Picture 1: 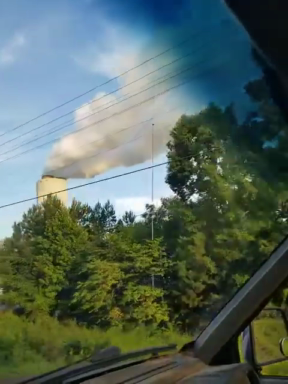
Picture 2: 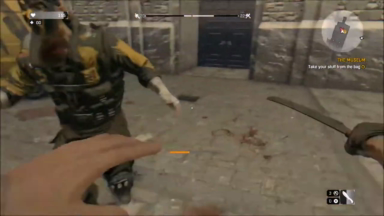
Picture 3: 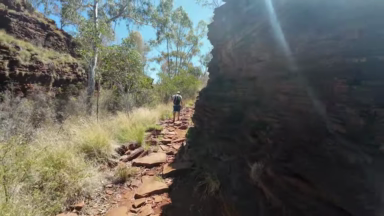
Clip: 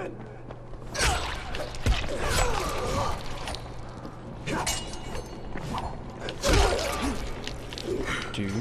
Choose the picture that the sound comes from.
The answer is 2